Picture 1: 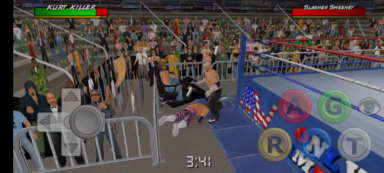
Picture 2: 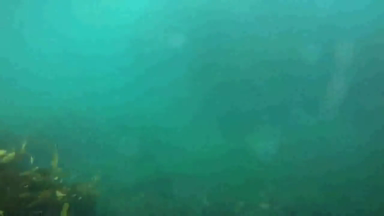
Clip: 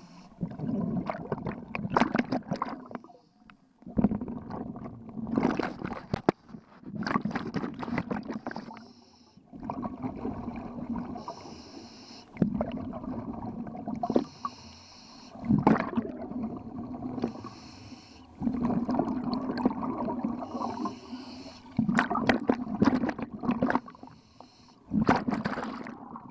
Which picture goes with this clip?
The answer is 2